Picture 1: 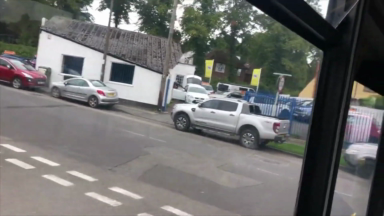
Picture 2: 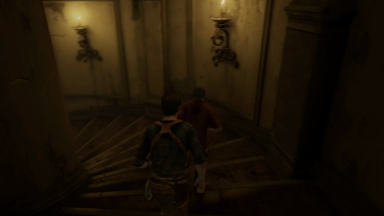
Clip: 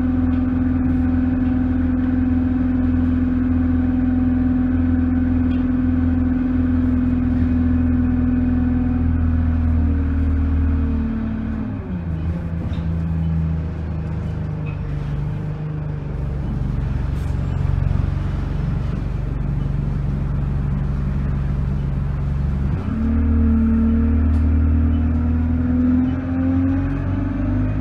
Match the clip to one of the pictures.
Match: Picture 1